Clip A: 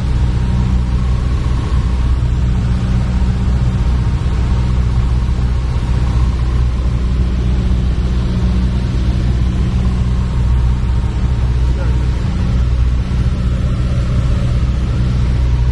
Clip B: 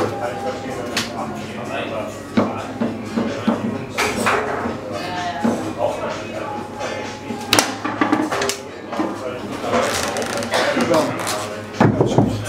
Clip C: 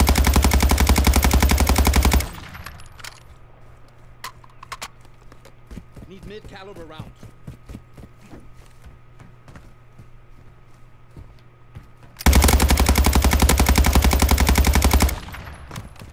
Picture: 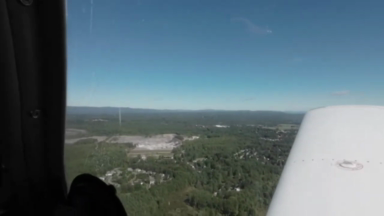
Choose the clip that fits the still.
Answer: A